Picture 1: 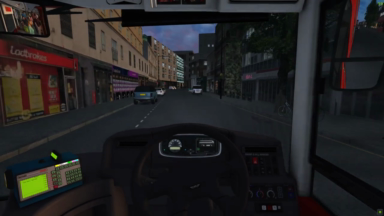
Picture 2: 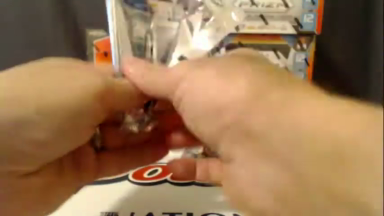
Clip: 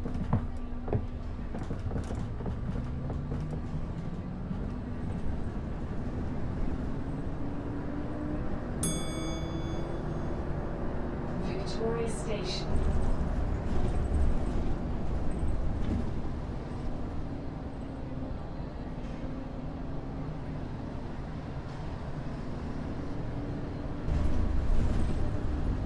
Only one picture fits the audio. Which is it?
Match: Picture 1